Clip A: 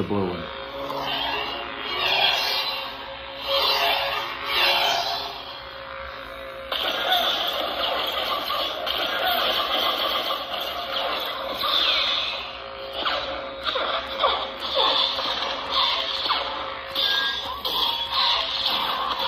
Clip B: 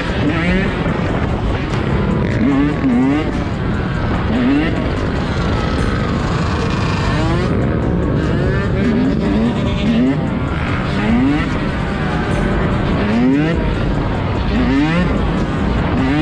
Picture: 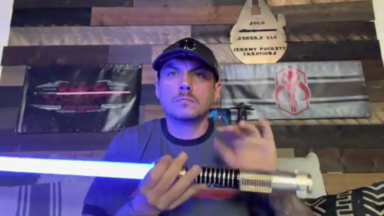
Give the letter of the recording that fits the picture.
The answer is A